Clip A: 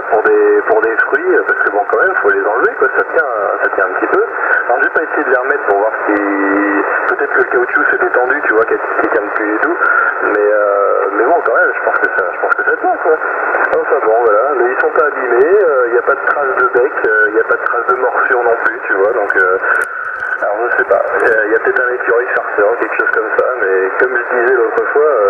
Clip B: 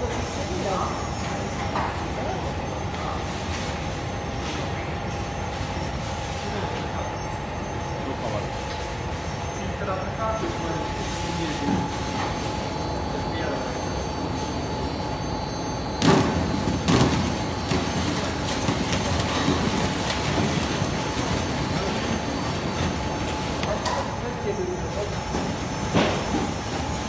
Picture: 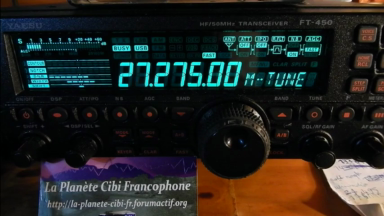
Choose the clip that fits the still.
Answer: A